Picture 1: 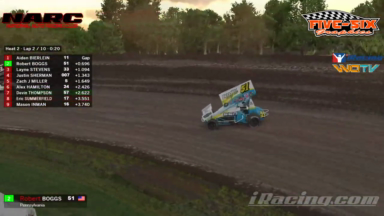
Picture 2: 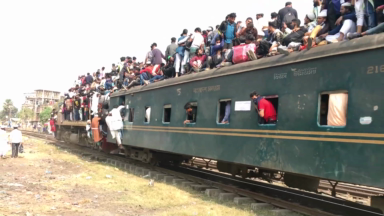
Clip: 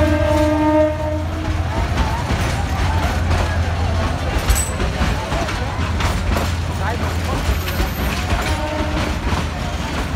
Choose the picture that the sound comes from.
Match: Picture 2